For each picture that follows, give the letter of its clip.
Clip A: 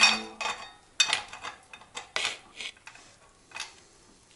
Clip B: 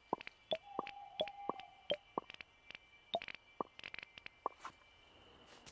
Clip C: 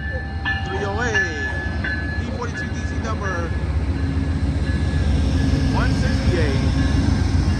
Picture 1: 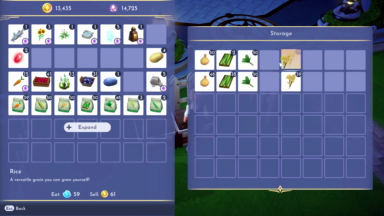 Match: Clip B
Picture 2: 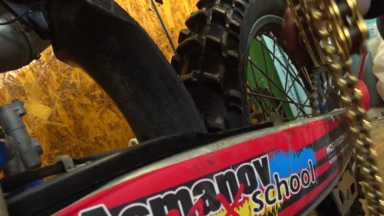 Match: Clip A